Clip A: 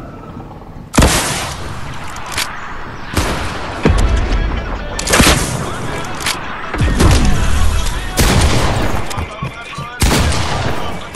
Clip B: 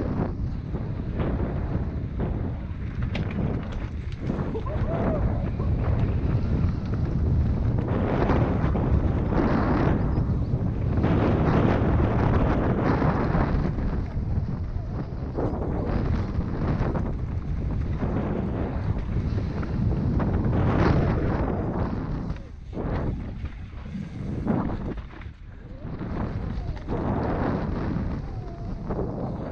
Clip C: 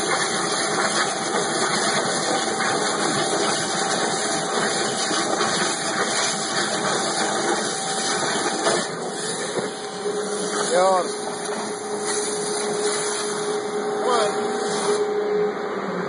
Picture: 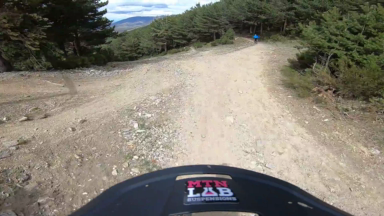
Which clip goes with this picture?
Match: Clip B